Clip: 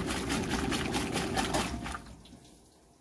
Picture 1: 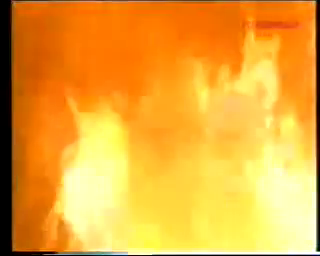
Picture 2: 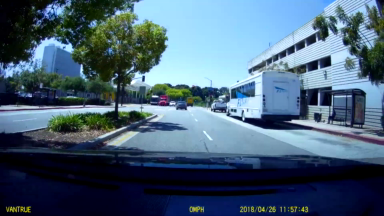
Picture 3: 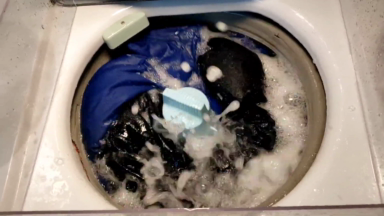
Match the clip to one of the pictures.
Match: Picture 3